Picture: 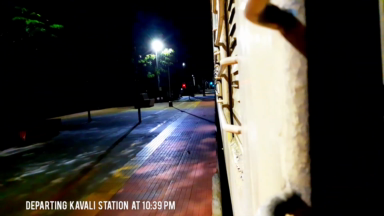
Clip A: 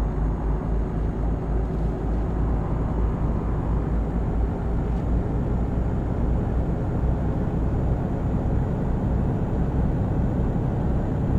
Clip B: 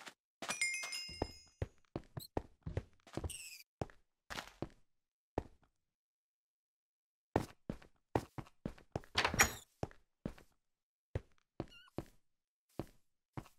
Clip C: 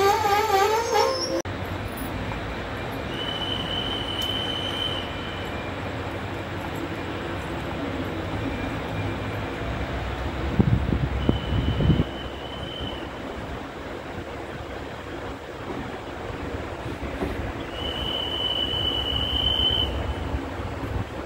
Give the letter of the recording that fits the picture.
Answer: C